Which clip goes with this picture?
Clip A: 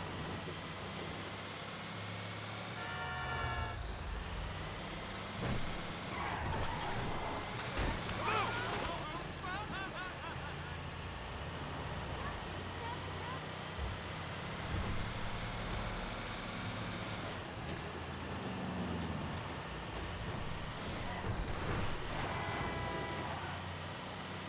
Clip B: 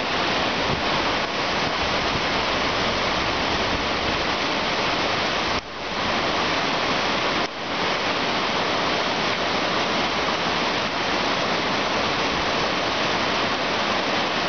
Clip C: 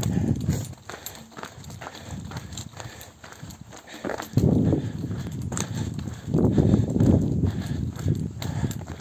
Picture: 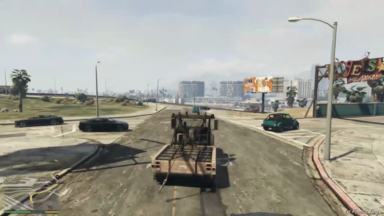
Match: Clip A